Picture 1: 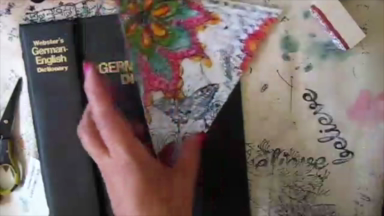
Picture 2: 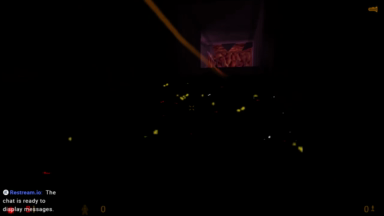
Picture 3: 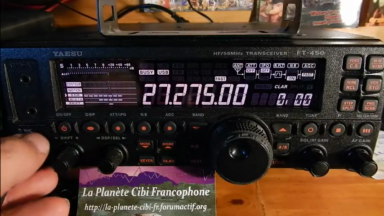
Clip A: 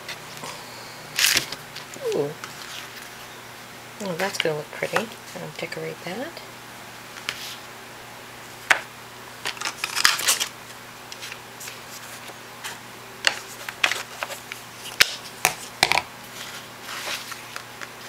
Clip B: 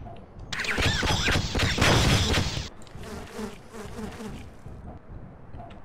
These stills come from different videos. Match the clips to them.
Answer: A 1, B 2